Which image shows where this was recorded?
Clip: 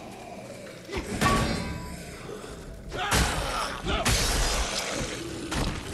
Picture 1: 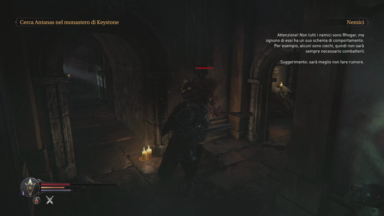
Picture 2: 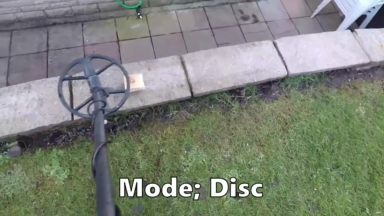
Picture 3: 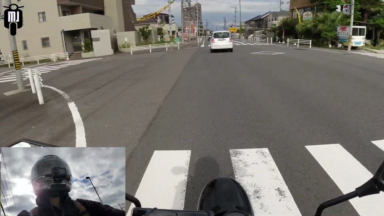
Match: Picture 1